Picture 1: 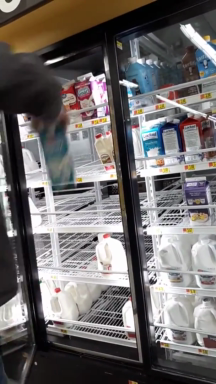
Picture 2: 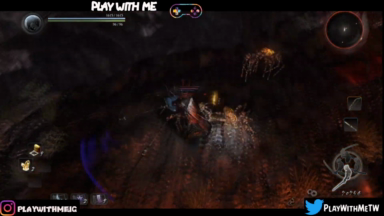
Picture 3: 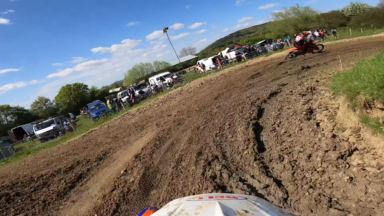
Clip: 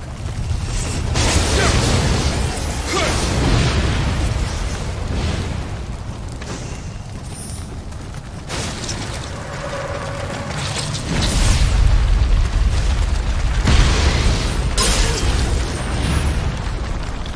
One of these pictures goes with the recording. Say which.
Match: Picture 2